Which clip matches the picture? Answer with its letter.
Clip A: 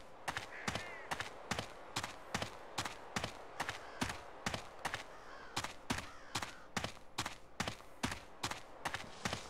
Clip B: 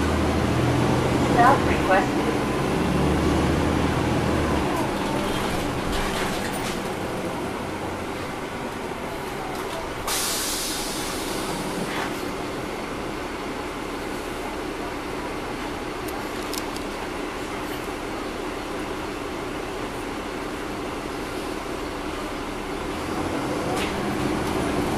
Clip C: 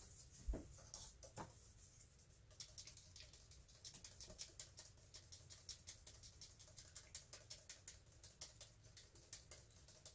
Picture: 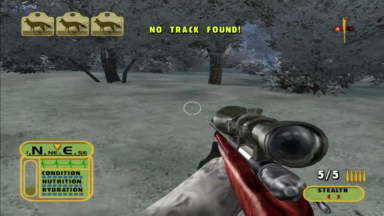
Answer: A